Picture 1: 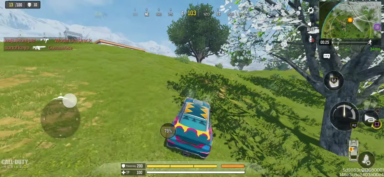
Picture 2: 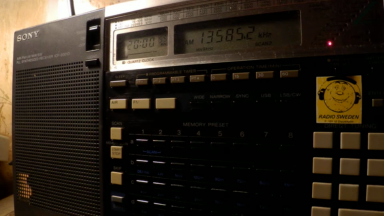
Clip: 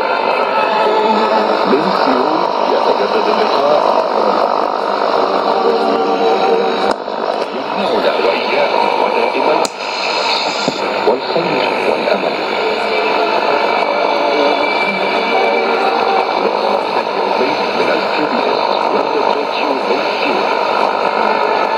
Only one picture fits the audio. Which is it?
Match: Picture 2